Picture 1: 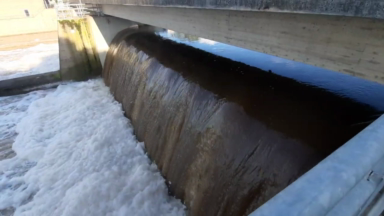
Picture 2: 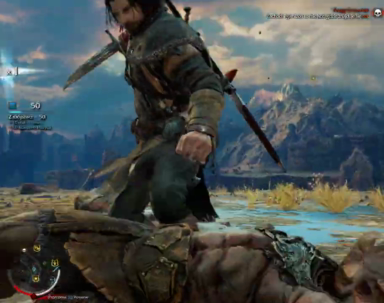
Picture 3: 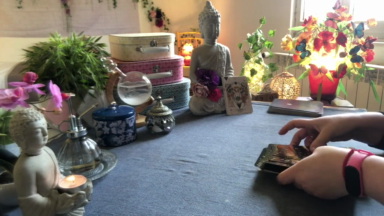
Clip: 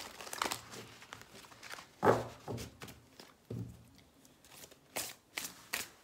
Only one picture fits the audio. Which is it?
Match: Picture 3